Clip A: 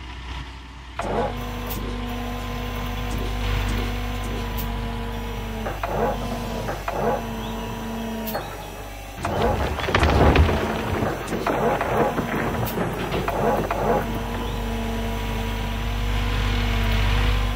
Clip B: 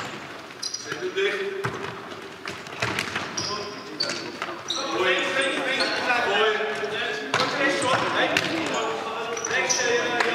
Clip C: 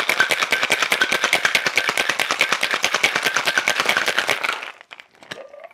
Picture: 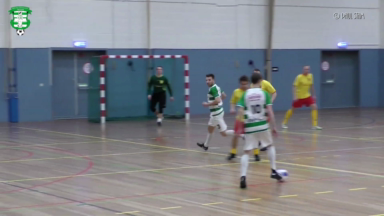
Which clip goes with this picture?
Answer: B